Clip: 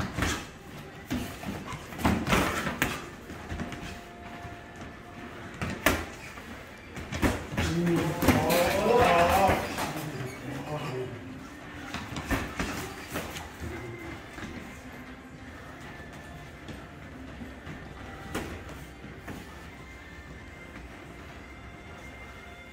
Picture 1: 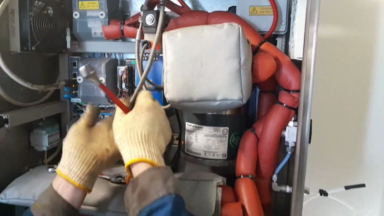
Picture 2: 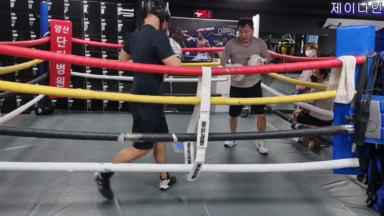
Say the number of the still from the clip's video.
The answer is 2